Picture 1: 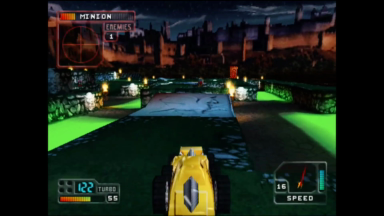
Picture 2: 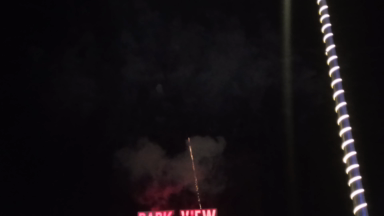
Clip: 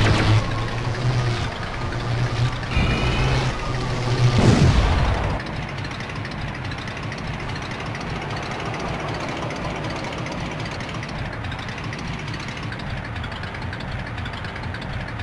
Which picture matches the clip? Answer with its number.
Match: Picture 1